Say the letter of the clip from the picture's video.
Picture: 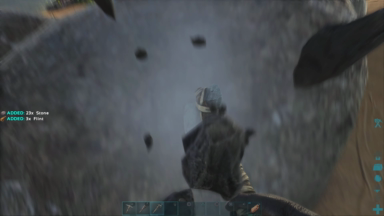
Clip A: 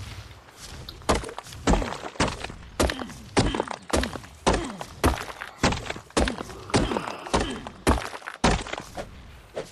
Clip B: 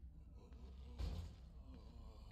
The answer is A